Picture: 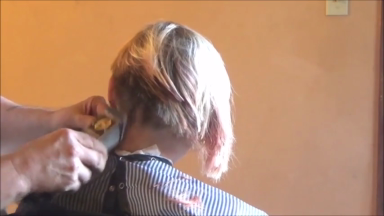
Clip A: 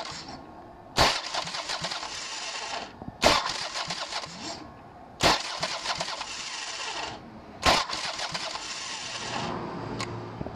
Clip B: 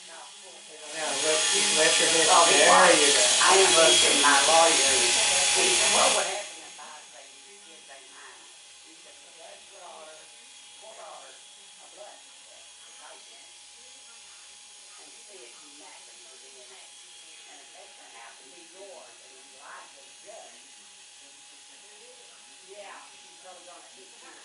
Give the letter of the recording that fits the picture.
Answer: B